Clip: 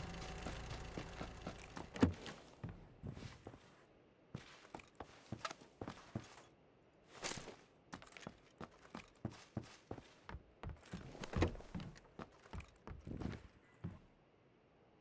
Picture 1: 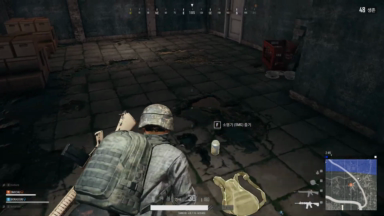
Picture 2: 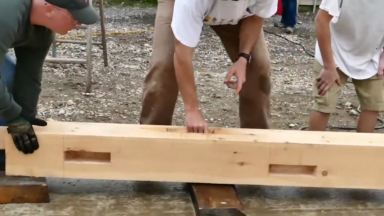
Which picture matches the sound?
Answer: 1